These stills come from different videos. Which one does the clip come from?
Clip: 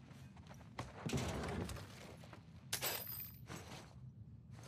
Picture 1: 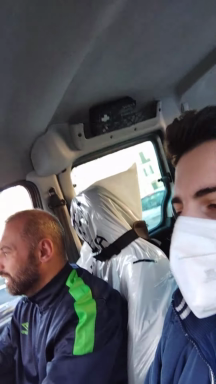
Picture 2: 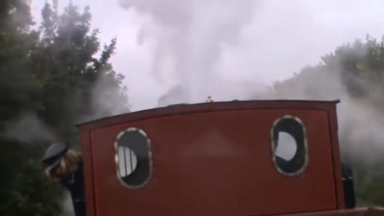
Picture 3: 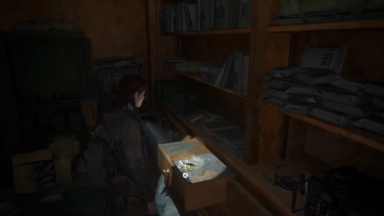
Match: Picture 3